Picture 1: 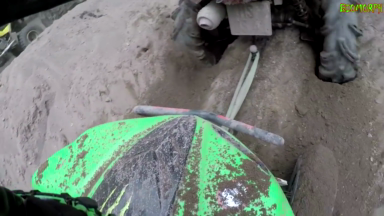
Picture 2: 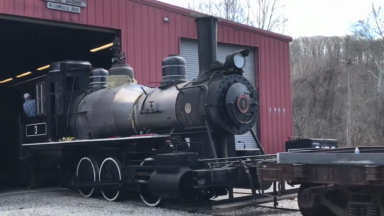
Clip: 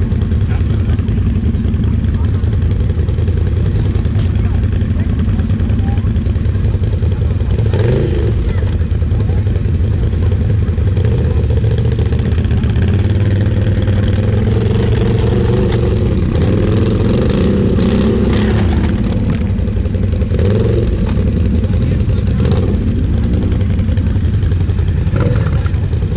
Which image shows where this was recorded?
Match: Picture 1